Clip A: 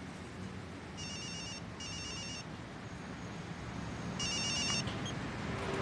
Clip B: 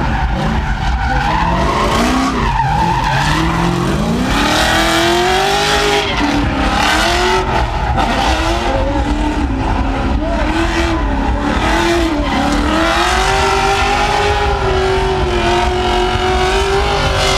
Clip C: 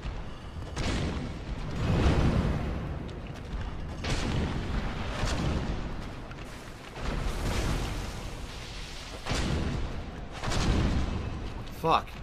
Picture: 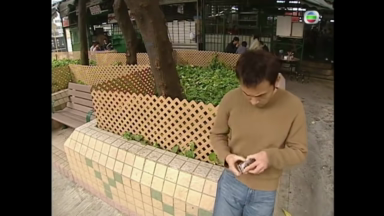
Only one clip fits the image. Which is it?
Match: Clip A